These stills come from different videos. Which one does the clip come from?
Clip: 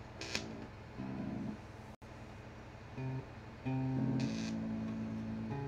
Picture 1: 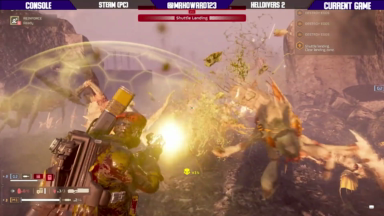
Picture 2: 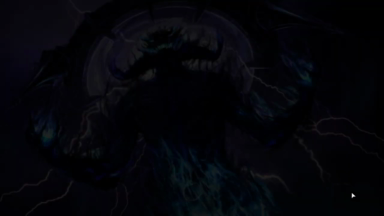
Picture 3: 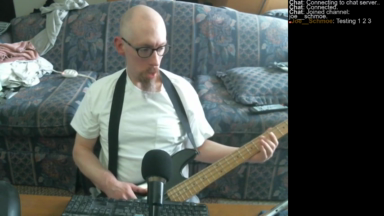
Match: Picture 3